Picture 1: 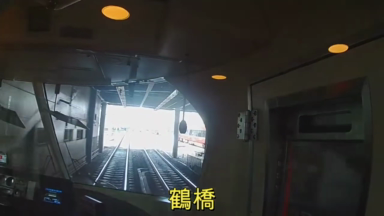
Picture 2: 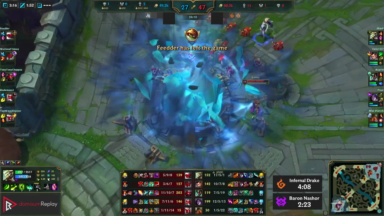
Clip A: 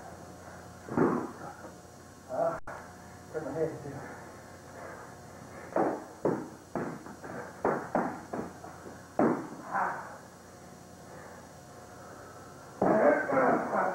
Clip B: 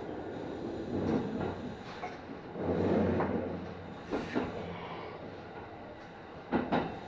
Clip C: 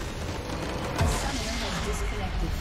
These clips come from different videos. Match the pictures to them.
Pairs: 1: B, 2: C